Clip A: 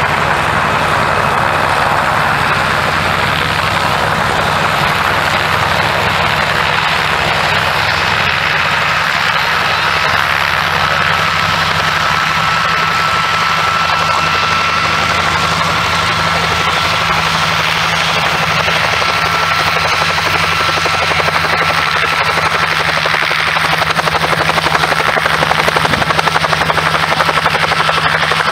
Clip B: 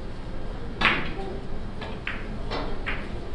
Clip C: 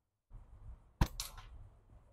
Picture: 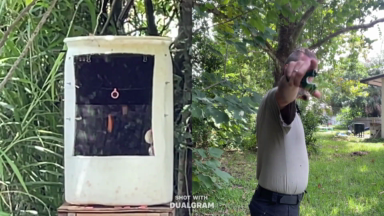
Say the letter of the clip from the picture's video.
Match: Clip C